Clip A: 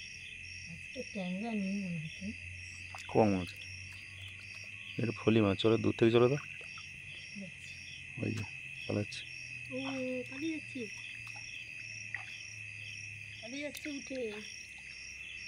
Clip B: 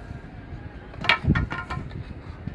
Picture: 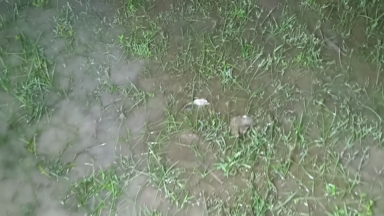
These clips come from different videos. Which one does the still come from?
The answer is A